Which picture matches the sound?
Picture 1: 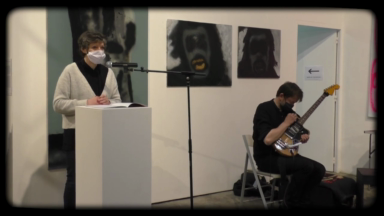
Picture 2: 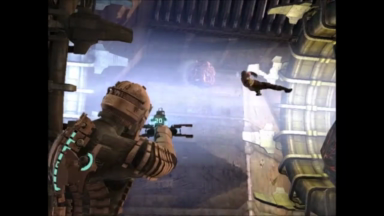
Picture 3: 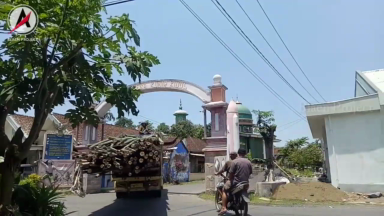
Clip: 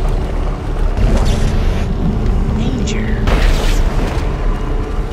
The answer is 2